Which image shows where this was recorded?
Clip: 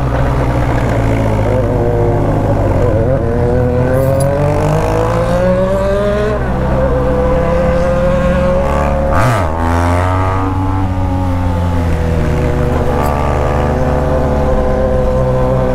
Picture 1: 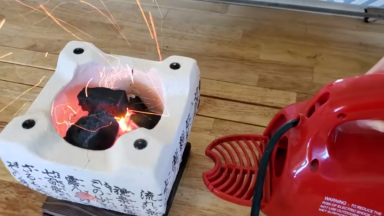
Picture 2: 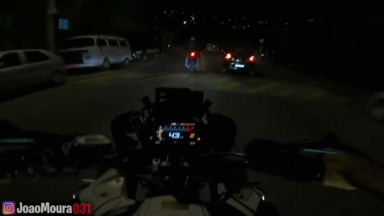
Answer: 2